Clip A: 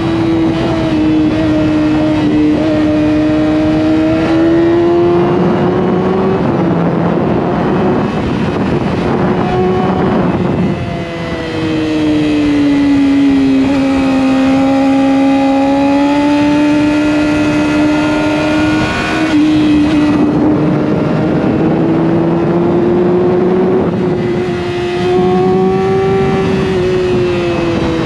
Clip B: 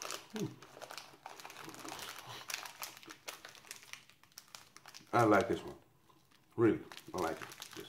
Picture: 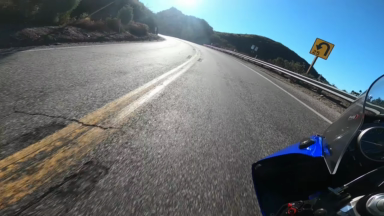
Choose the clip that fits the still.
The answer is A